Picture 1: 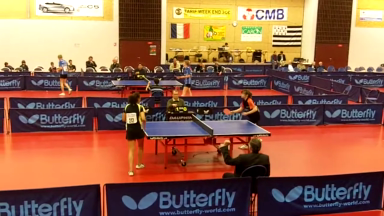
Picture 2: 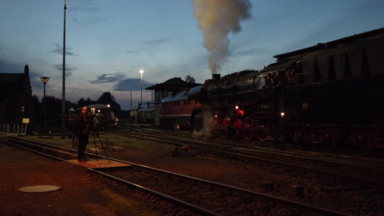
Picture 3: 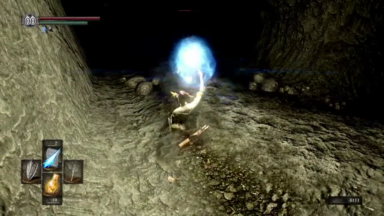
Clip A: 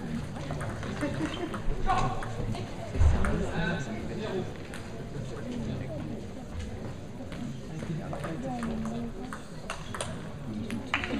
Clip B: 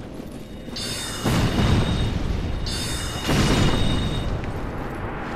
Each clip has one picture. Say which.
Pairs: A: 1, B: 3